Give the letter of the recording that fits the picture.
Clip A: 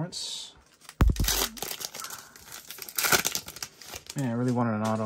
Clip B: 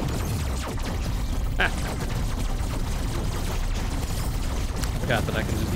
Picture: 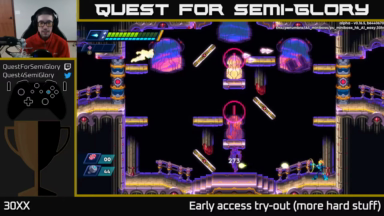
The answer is B